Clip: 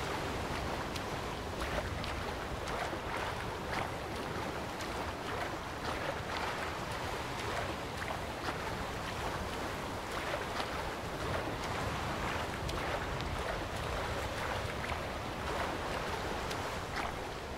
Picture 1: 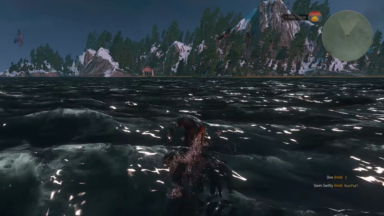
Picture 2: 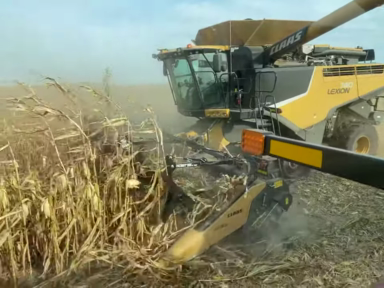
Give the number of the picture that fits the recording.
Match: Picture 1